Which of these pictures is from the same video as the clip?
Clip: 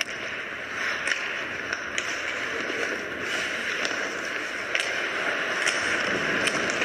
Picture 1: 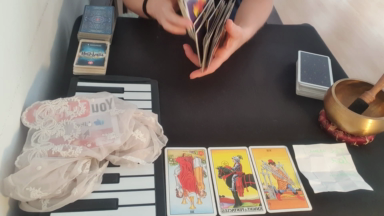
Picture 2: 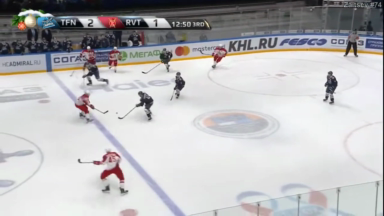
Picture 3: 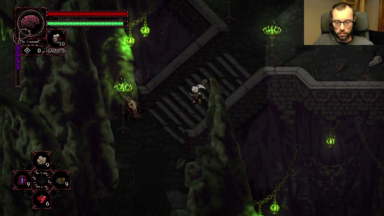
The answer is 2